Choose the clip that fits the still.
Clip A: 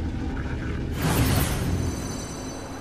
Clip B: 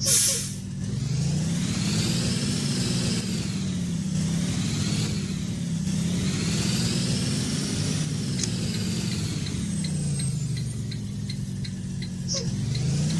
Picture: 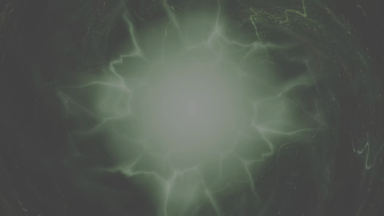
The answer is A